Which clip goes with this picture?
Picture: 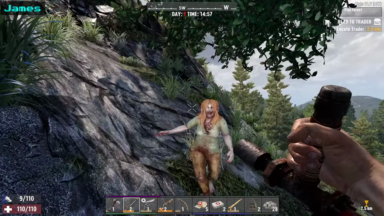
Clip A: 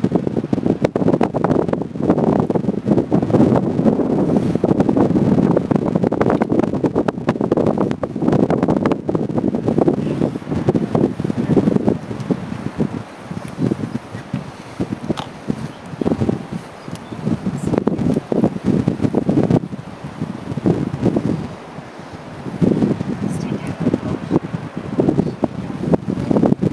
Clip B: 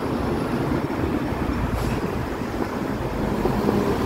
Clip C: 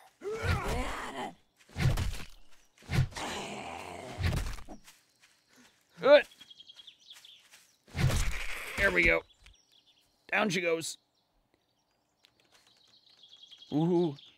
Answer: C